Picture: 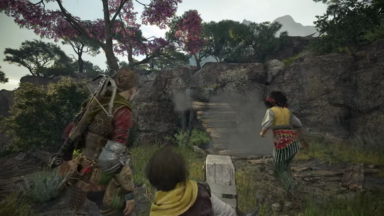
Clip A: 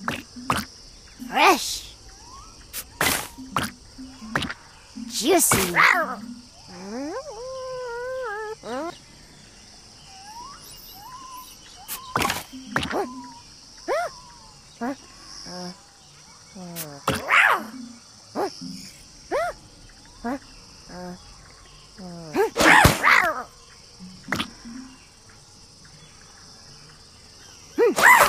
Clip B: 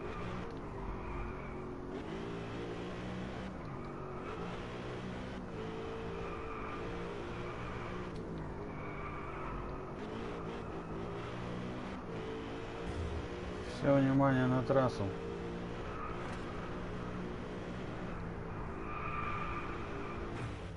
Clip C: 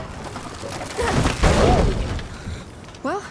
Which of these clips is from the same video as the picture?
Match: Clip C